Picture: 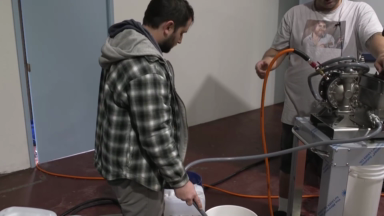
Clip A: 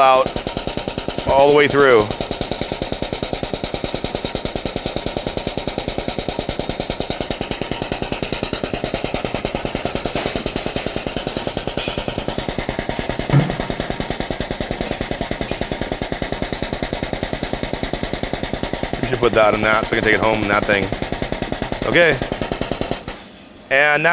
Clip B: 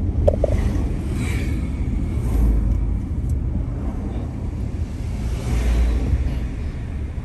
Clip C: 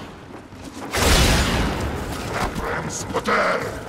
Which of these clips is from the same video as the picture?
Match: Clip A